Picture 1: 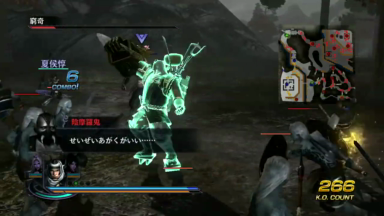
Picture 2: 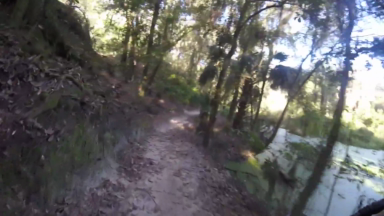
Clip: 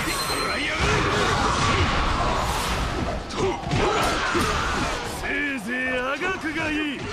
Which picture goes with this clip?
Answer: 1